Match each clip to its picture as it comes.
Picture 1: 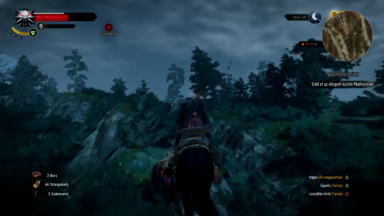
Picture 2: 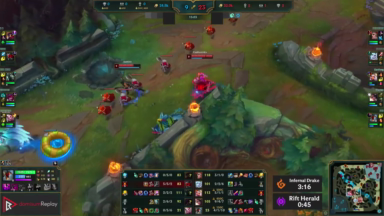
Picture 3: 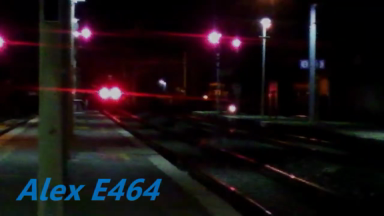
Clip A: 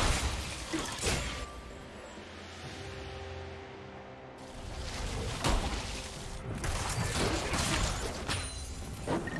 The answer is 2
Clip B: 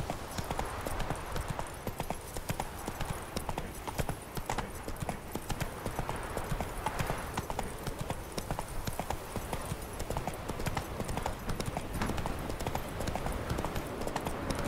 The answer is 1